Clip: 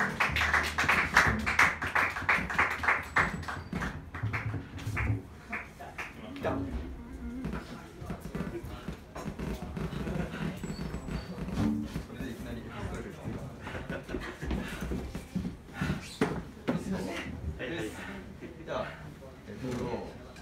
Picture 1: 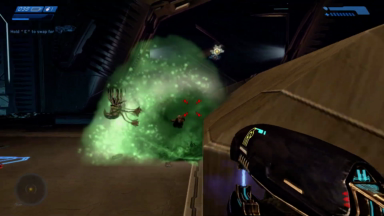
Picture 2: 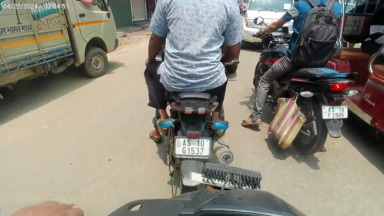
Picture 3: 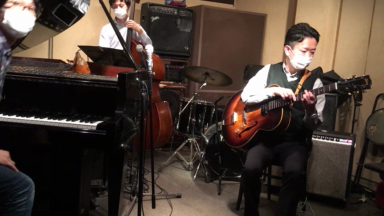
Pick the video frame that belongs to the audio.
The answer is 3